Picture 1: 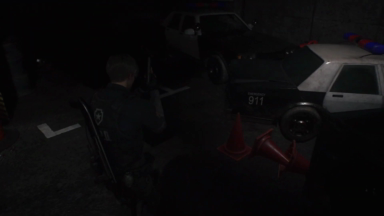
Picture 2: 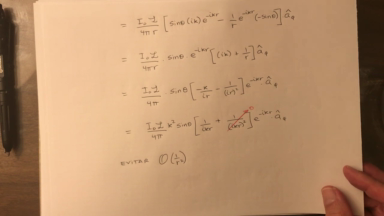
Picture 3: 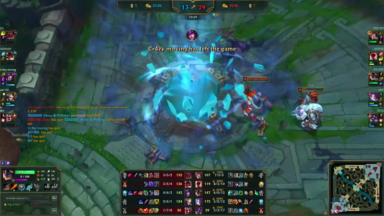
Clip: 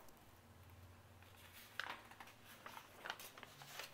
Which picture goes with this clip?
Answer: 2